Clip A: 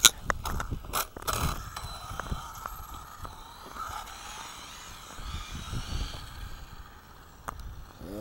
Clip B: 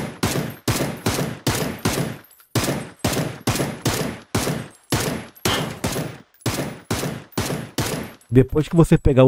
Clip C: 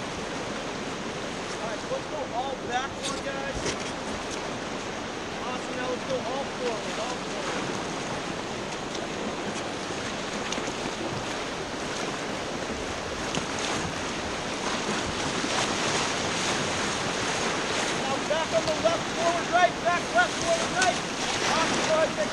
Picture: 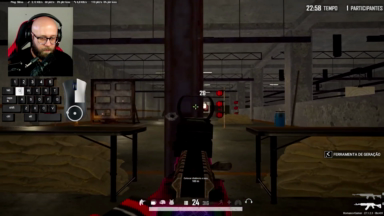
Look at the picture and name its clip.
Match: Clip B